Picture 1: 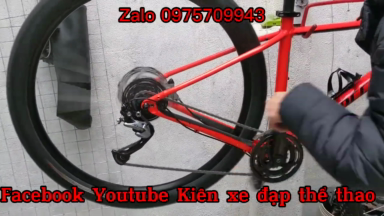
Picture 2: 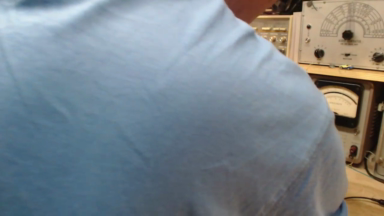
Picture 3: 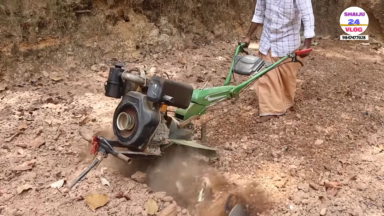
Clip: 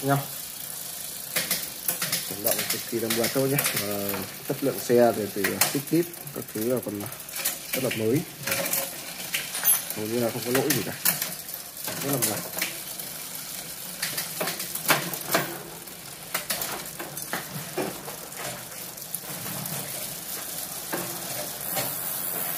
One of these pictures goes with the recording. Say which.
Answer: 1